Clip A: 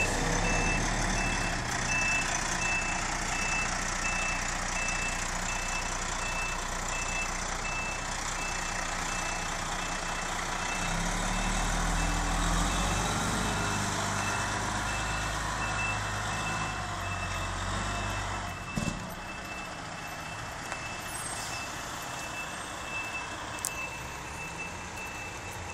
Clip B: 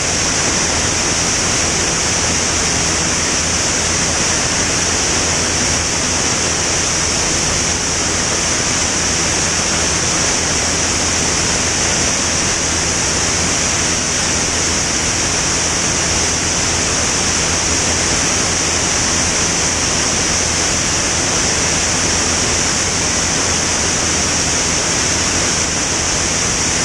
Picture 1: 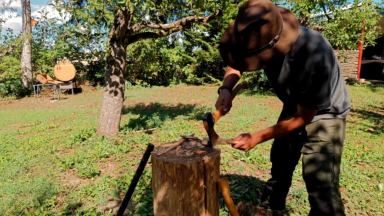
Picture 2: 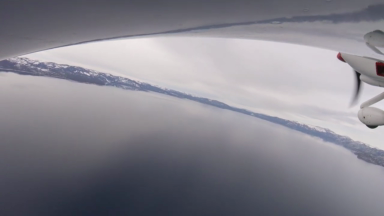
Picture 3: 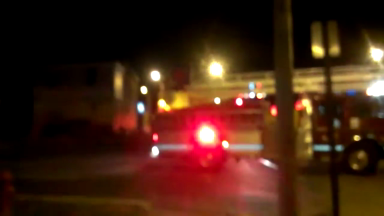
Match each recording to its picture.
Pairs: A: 3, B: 2